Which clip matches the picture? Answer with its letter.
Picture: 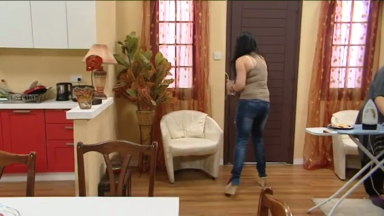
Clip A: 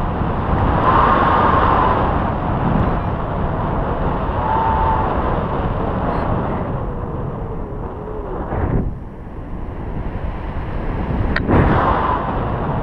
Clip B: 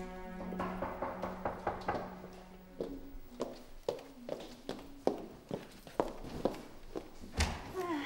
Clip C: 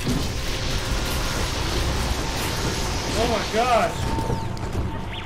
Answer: B